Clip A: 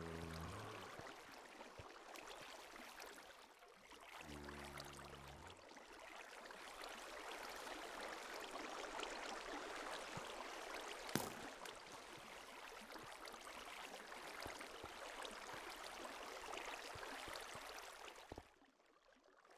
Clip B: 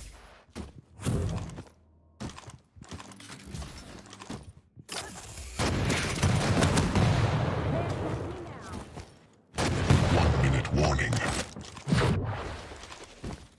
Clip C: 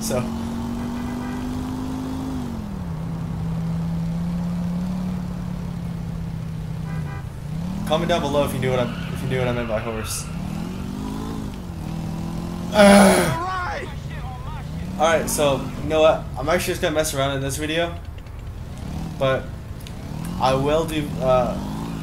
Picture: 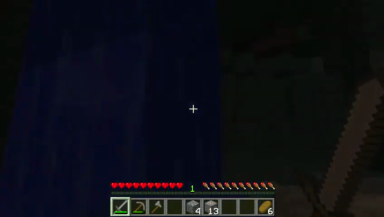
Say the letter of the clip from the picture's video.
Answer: A